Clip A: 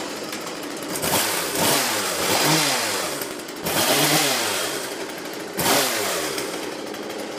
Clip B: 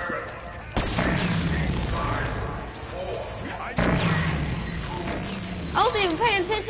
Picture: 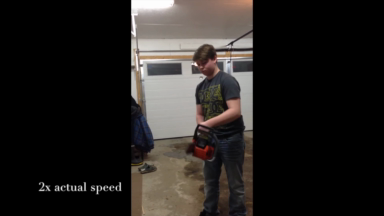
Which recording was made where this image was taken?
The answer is A